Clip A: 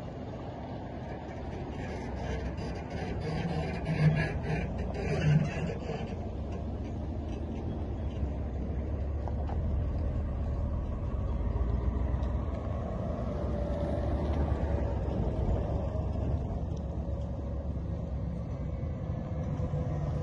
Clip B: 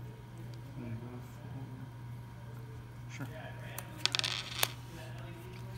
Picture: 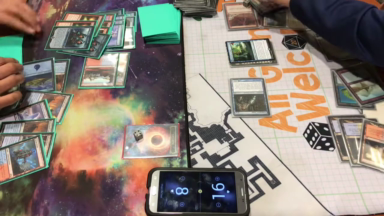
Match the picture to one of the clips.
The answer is B